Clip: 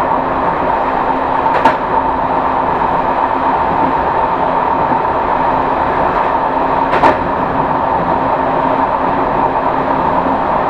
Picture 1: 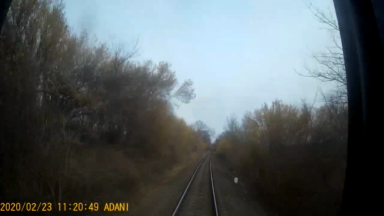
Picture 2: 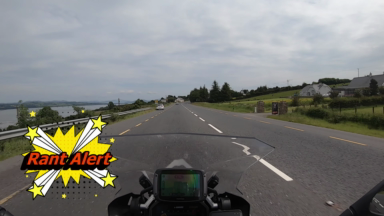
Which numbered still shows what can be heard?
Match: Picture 1